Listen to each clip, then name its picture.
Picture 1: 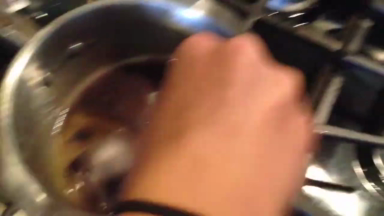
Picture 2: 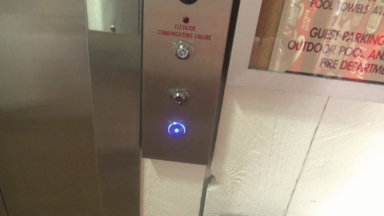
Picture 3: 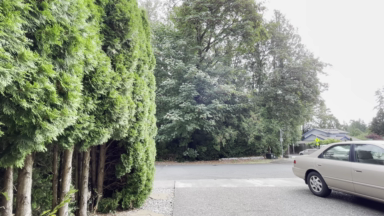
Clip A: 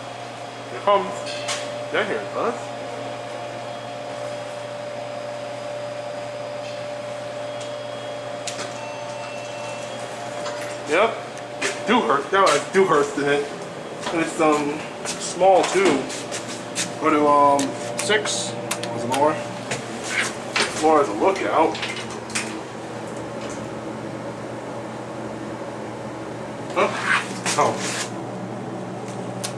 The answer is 2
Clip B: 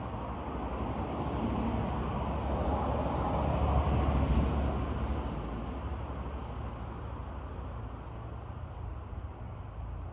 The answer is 3